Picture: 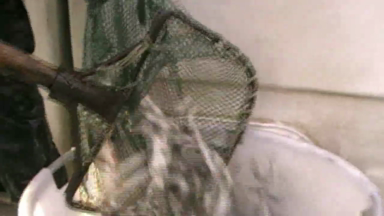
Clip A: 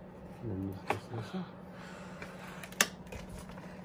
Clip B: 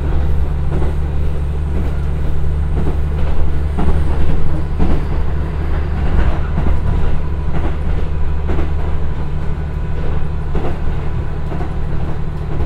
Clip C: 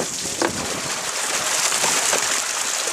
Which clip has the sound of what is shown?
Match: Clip C